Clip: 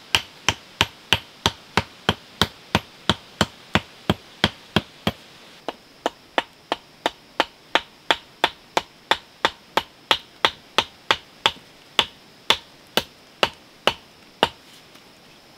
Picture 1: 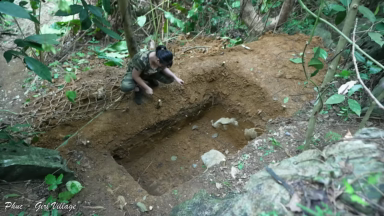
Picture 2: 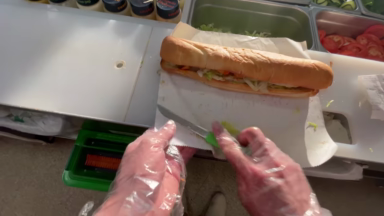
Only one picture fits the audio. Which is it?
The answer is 1